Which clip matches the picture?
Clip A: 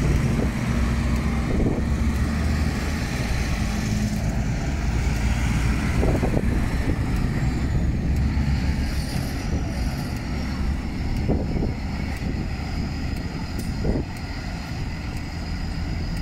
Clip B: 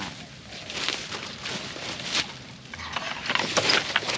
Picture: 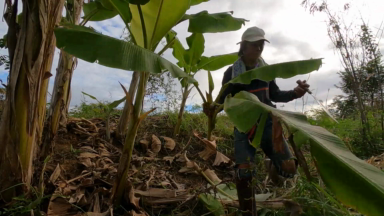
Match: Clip B